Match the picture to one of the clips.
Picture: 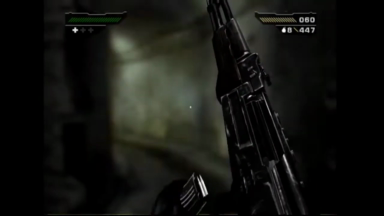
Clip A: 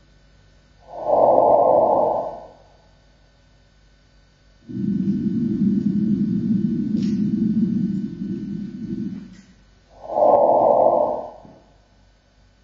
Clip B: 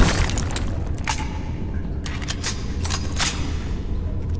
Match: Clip B